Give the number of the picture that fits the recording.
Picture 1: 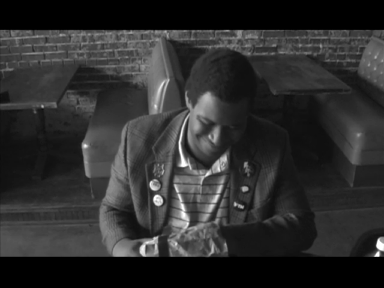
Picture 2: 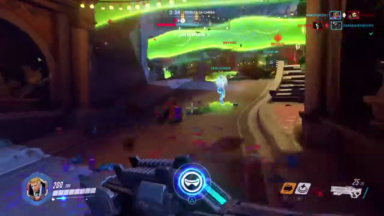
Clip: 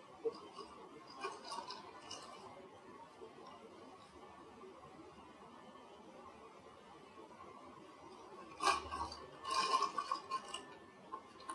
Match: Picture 1